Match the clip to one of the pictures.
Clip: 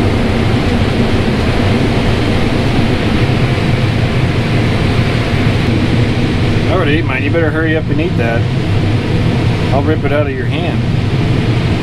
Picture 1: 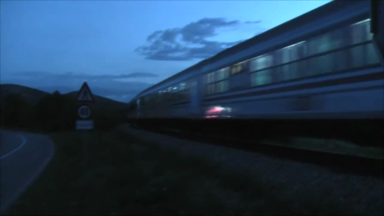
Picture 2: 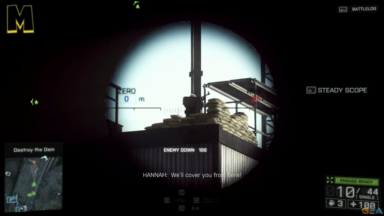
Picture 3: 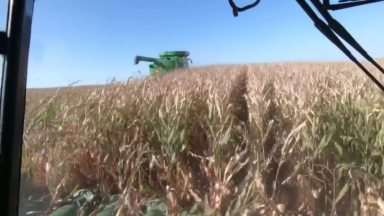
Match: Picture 3